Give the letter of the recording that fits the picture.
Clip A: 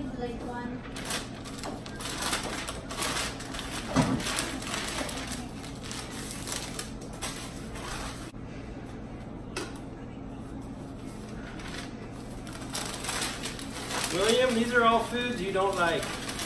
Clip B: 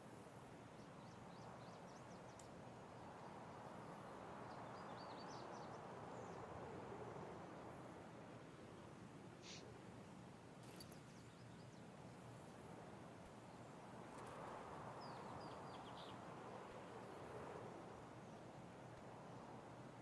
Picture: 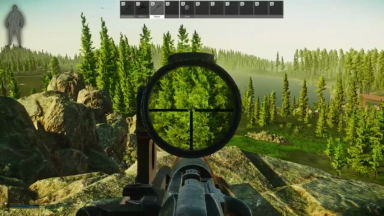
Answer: B